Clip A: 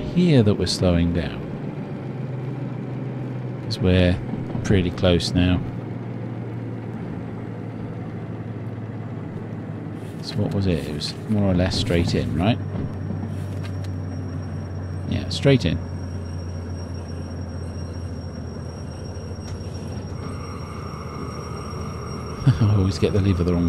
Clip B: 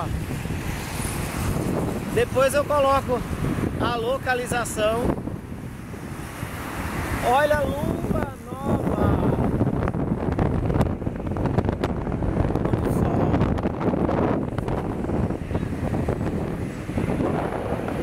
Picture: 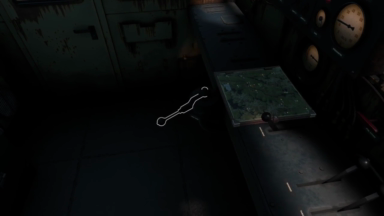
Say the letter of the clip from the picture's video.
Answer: A